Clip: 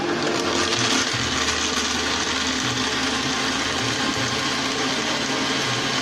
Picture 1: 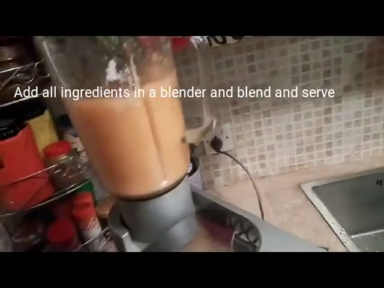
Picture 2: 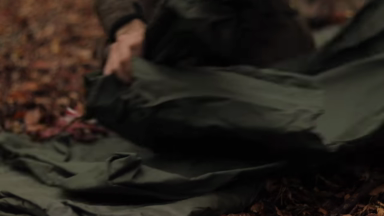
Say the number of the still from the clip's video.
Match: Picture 1